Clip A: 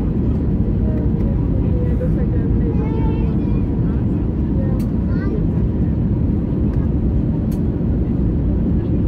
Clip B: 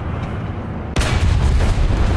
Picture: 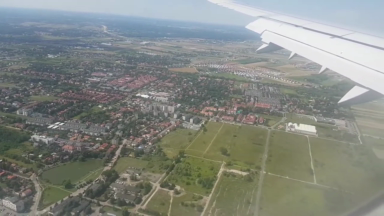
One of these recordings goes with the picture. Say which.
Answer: A